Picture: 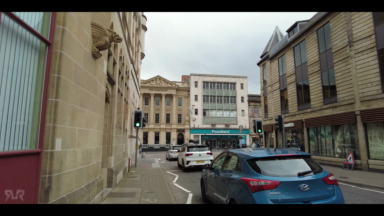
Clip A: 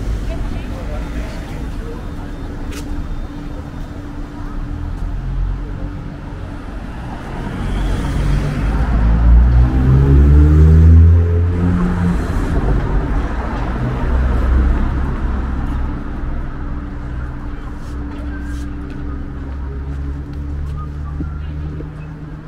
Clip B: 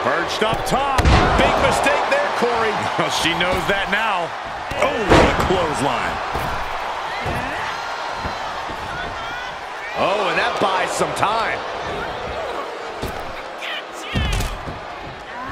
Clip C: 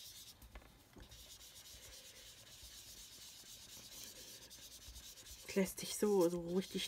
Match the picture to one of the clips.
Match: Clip A